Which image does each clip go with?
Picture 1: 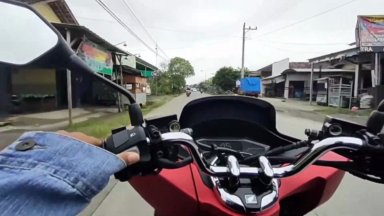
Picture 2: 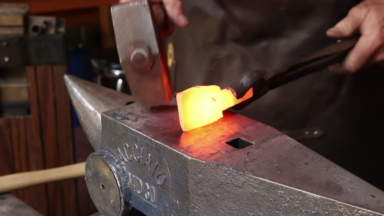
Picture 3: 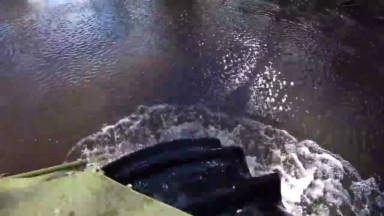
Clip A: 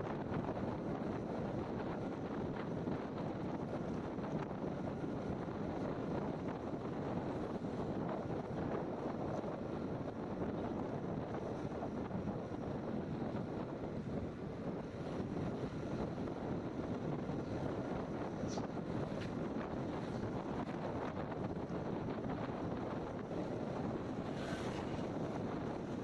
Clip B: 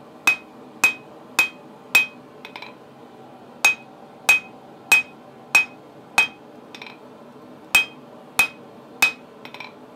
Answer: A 1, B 2